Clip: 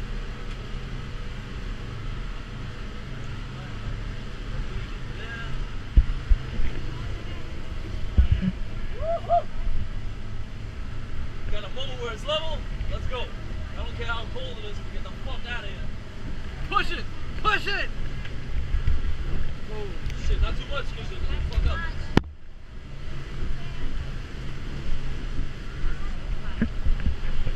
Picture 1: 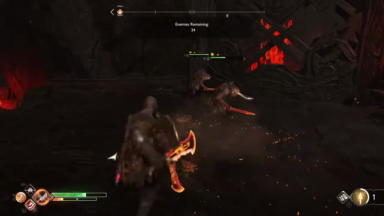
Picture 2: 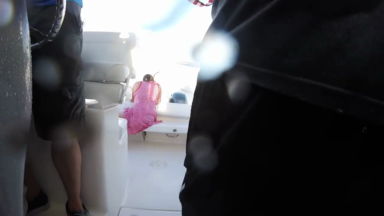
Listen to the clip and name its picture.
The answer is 2